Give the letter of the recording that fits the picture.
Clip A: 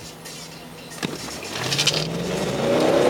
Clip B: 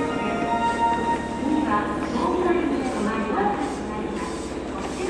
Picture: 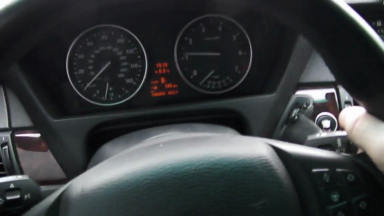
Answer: A